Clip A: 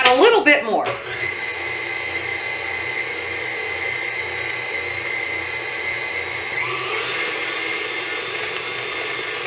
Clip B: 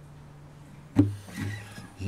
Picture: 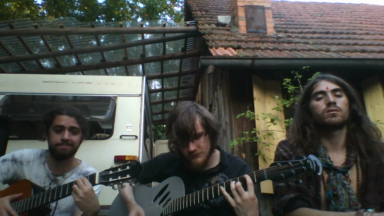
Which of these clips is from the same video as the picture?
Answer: B